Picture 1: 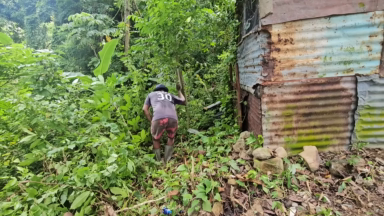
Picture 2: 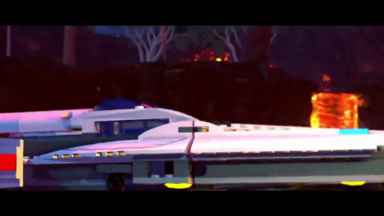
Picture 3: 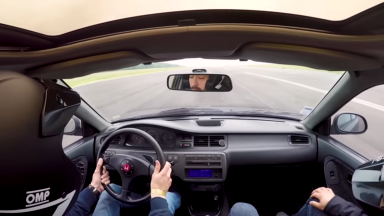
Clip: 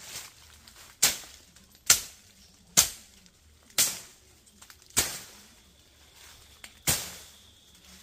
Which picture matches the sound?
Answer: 1